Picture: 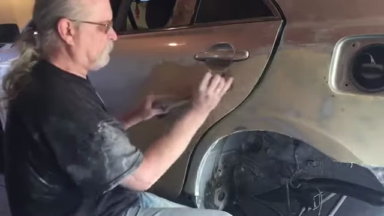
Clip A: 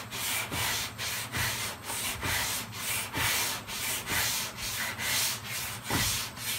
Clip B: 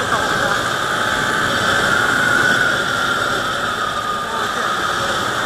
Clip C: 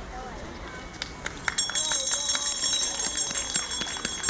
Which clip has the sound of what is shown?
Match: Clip A